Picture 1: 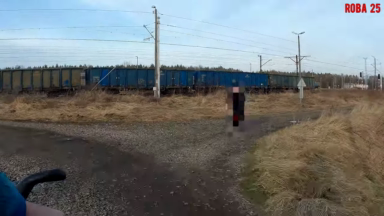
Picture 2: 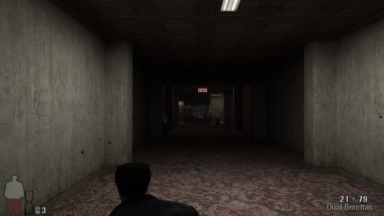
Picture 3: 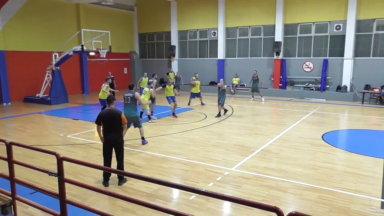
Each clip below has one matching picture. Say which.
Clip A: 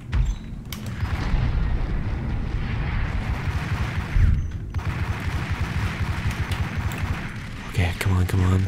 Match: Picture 2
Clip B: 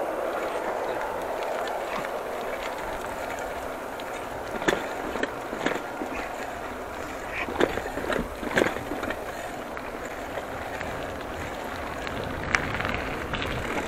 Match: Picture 1